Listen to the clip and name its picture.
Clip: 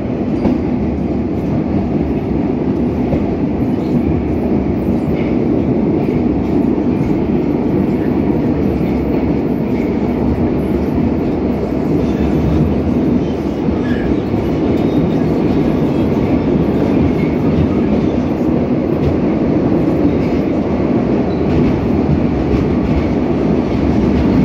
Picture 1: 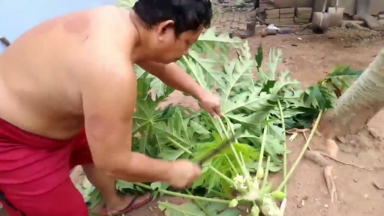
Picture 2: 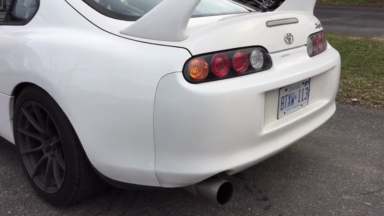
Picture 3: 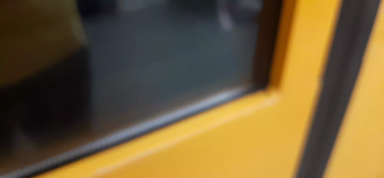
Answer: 3